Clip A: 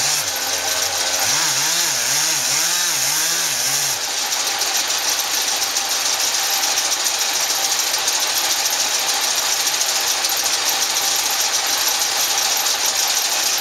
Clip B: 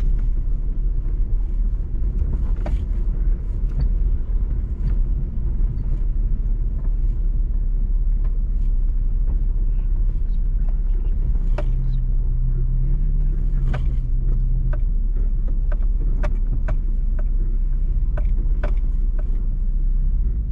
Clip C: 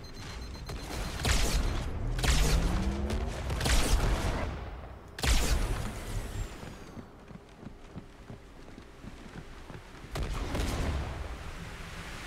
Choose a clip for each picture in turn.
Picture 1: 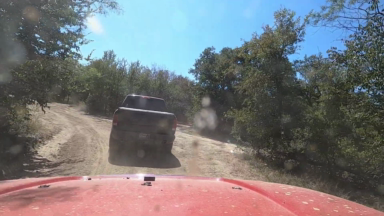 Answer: B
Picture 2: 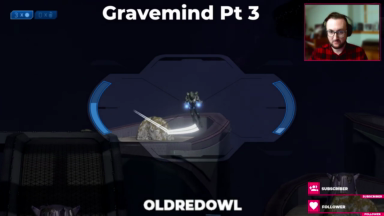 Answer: C